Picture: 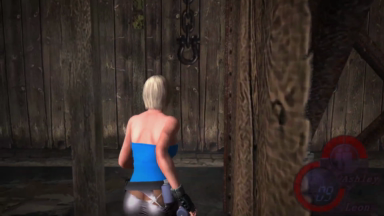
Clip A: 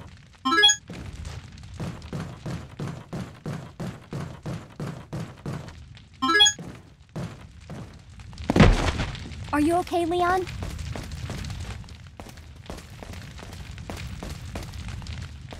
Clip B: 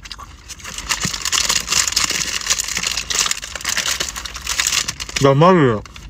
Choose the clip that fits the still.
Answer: A